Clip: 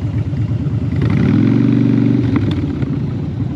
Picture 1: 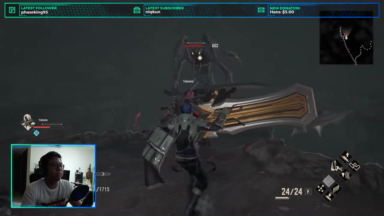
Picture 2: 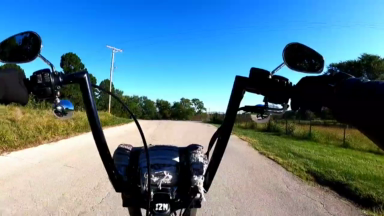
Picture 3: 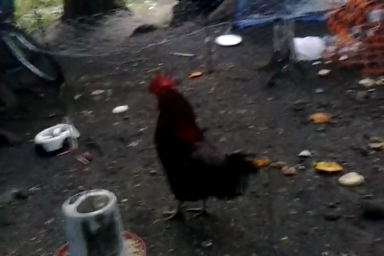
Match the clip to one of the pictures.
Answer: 2